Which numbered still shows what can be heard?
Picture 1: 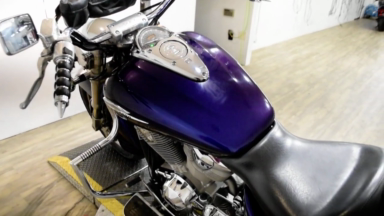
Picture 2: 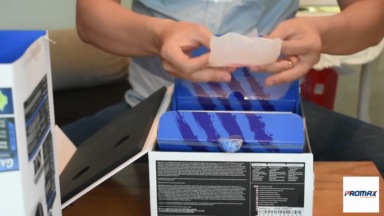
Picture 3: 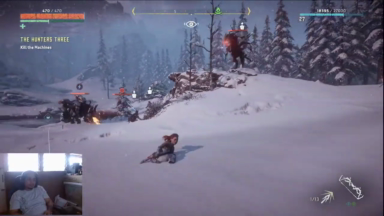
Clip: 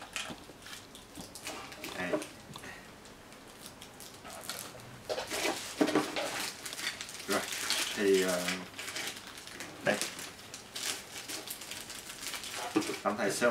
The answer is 2